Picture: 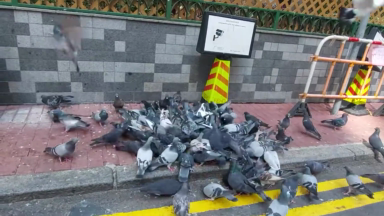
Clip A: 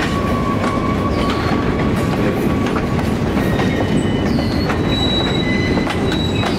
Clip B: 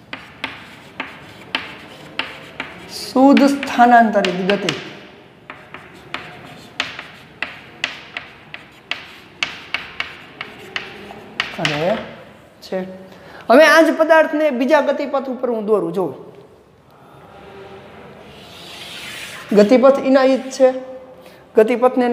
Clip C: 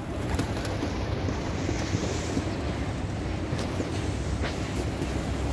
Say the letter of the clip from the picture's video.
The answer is C